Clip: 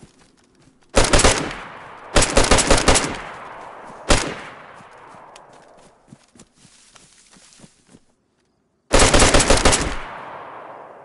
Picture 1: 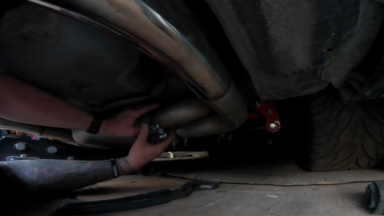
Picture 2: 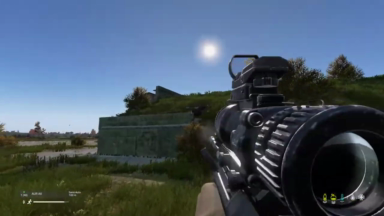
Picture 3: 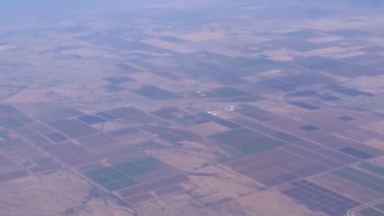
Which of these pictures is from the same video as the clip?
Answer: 2